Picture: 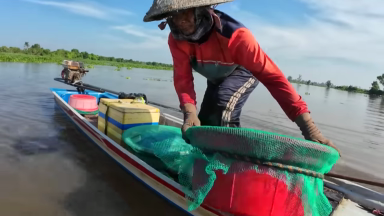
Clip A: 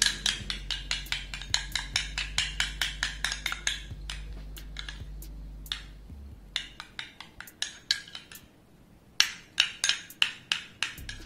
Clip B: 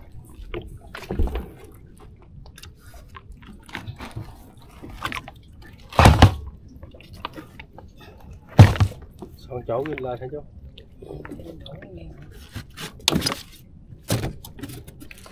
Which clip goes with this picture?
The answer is B